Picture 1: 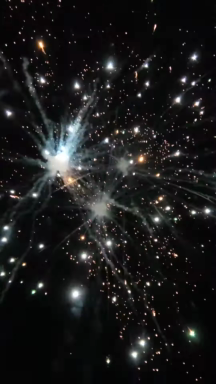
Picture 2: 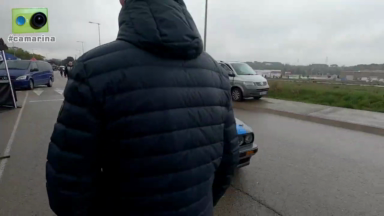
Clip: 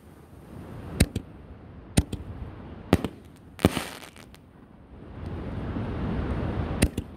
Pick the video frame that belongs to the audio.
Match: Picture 1